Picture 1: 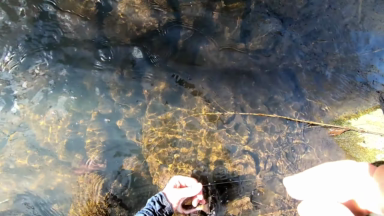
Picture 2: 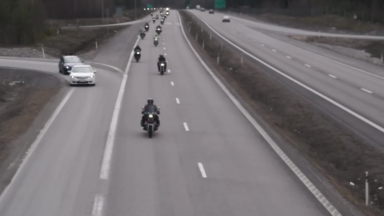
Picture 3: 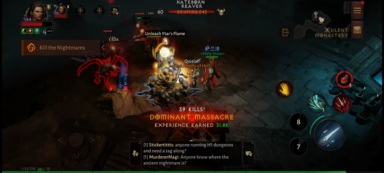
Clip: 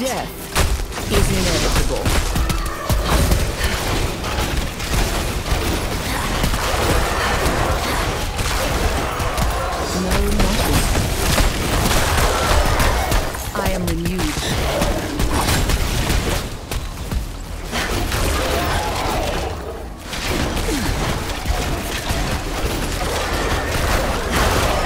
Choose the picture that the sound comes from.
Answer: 3